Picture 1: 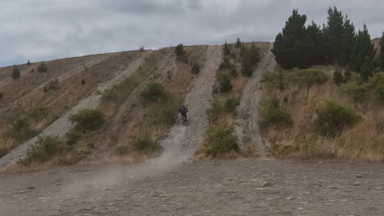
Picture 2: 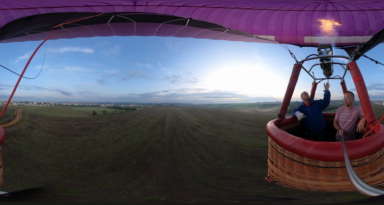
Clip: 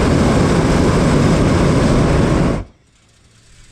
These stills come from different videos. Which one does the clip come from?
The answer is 2